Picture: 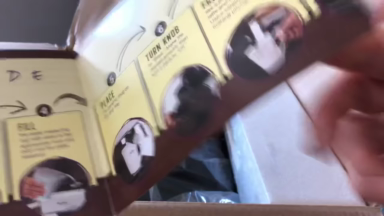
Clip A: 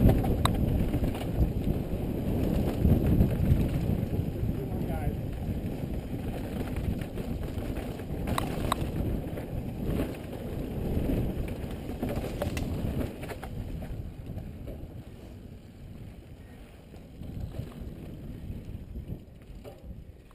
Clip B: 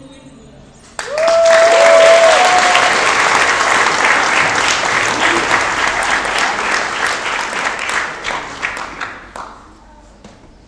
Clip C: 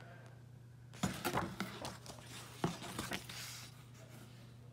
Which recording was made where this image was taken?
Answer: C